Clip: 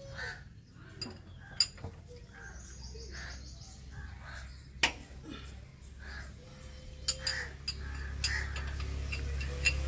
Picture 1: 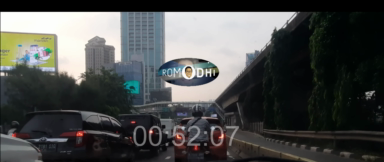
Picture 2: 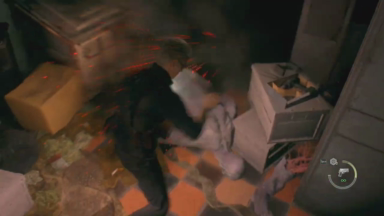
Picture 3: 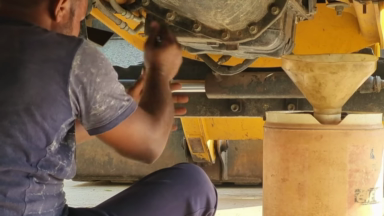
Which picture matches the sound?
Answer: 3